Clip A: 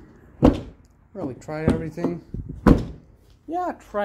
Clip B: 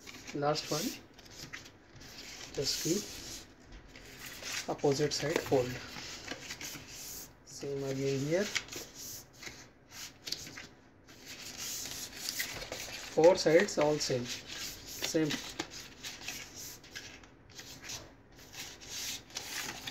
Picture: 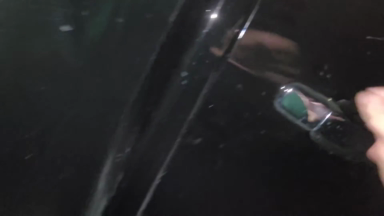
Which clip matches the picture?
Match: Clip A